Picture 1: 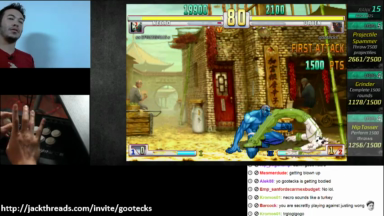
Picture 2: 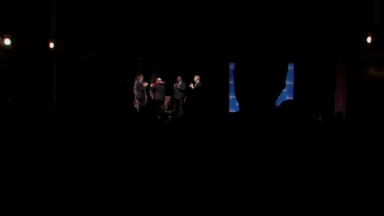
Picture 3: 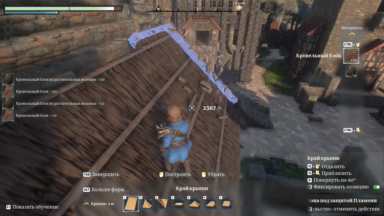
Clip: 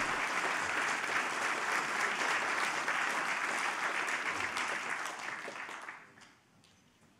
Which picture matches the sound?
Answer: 2